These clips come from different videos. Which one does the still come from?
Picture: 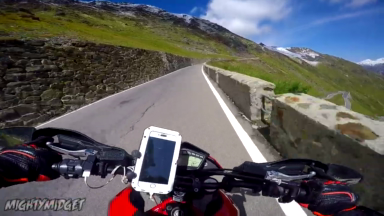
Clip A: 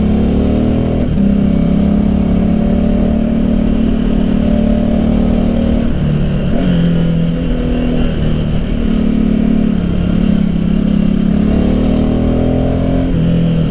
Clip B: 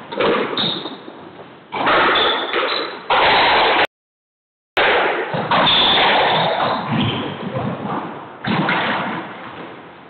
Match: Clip A